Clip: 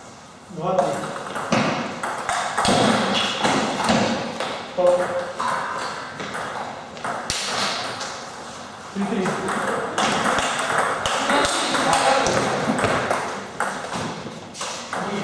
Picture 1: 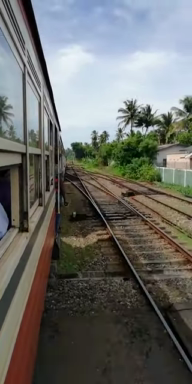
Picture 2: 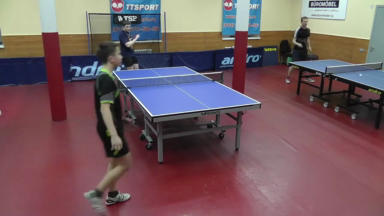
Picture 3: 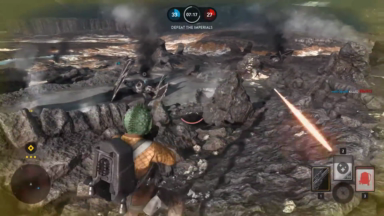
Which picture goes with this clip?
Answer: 2